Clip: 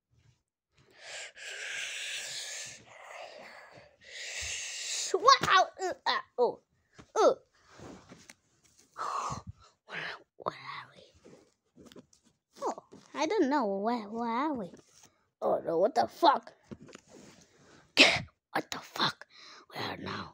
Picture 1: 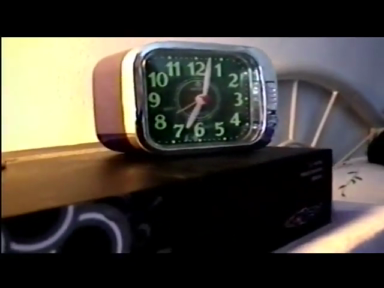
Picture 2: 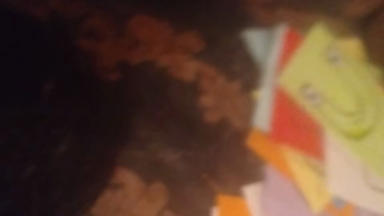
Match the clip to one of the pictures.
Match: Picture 2